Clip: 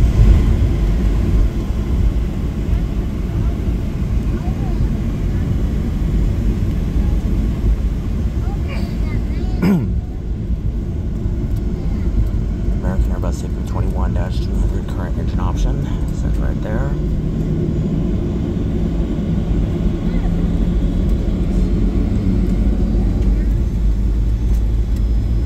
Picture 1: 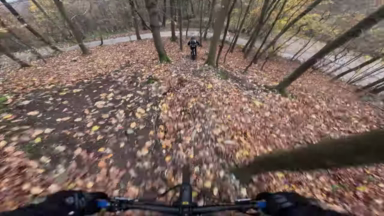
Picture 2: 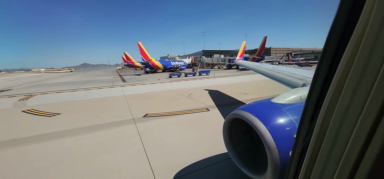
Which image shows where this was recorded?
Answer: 2